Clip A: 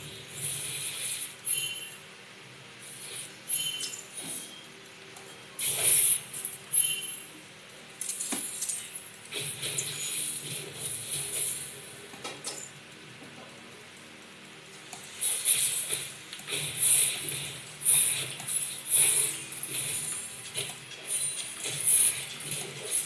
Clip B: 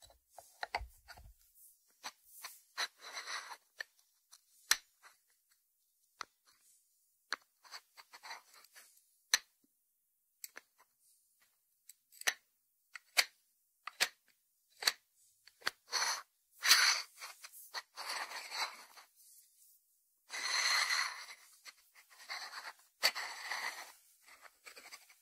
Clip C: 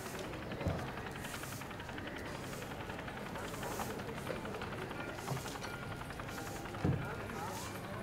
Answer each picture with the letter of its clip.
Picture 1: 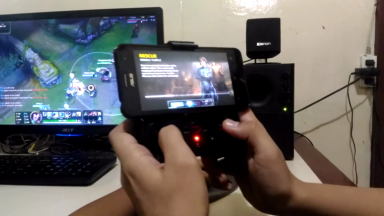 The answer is A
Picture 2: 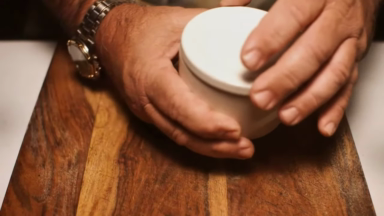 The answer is B